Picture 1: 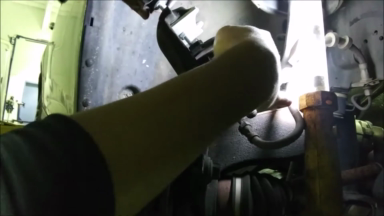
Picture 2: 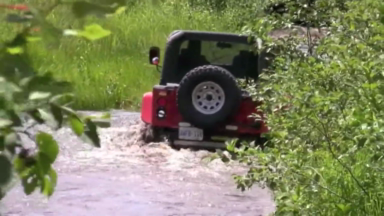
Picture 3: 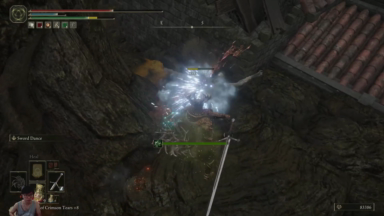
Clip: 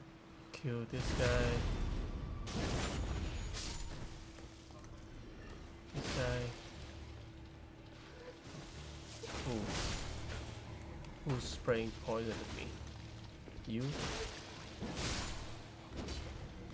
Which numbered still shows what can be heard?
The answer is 3